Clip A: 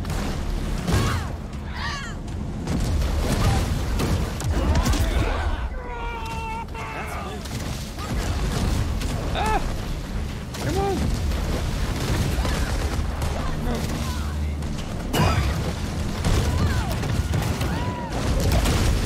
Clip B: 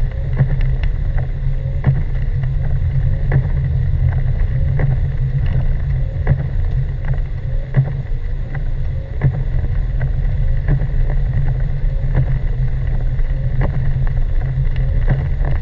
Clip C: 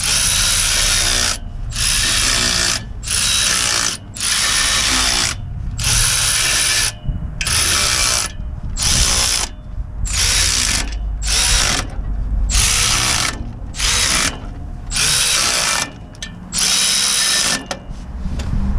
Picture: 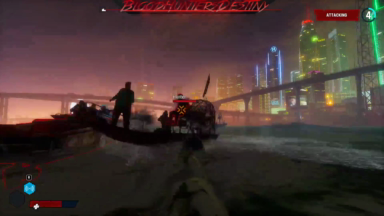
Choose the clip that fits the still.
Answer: A